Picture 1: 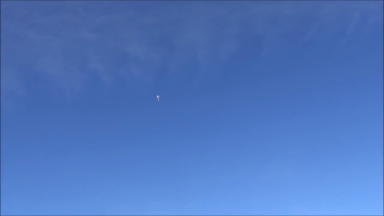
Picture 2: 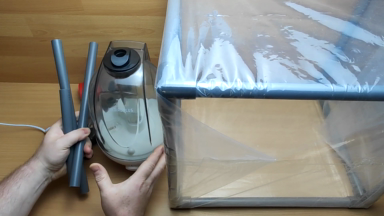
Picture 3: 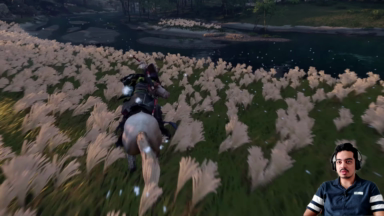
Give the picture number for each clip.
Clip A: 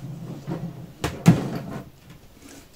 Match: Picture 2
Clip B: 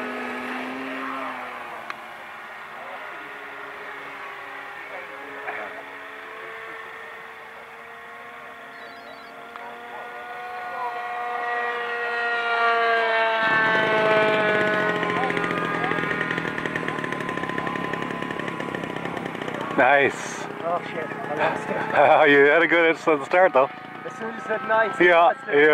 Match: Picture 1